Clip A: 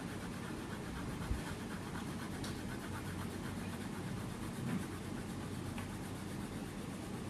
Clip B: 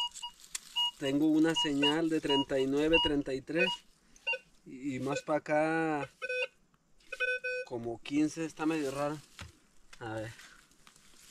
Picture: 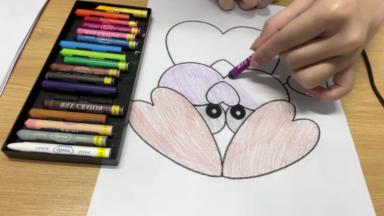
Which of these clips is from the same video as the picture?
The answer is A